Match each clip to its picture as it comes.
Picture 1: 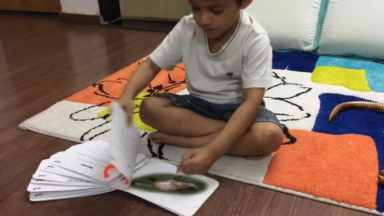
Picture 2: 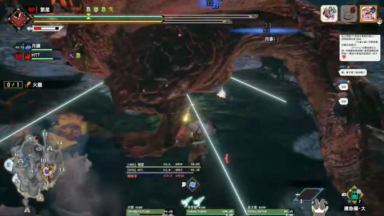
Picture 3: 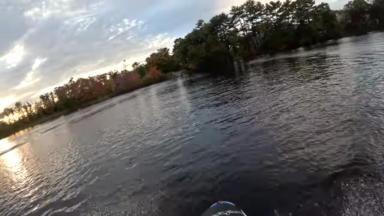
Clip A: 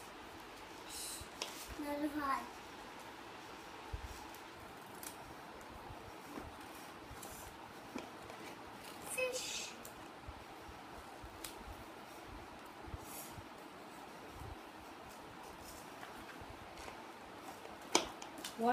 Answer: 1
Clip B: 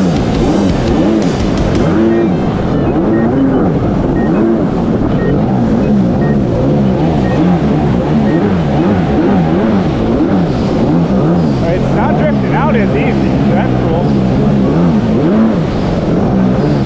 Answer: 3